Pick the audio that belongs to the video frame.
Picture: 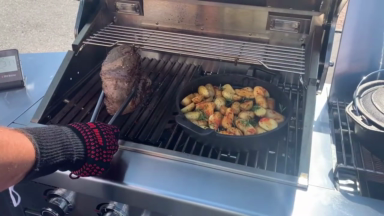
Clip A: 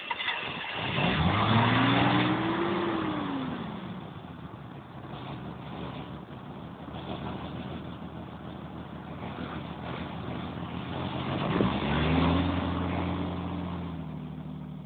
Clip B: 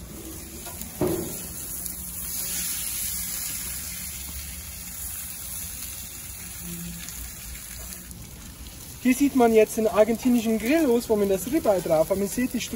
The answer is B